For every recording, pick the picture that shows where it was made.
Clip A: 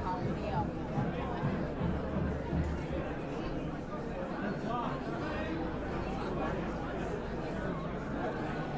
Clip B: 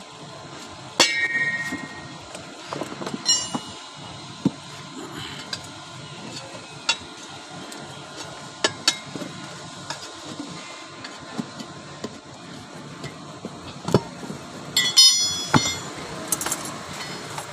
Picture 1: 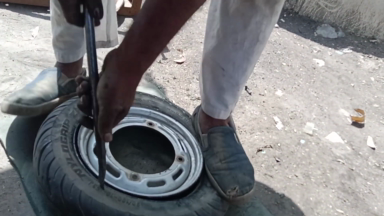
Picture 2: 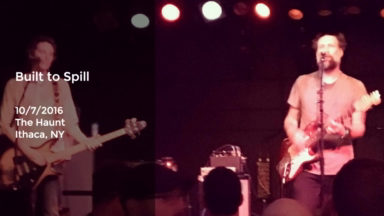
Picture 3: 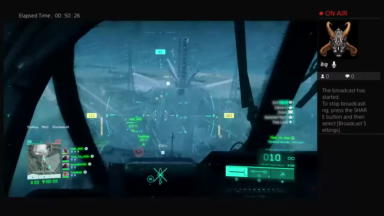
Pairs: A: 2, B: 1